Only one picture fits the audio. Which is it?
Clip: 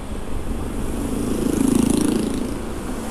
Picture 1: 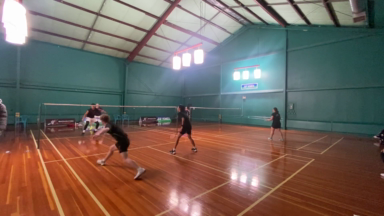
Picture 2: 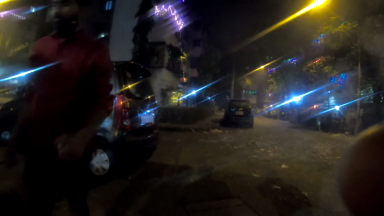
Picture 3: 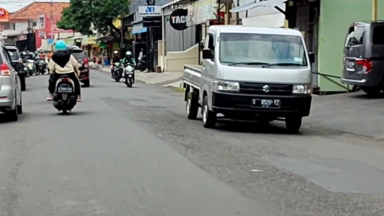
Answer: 3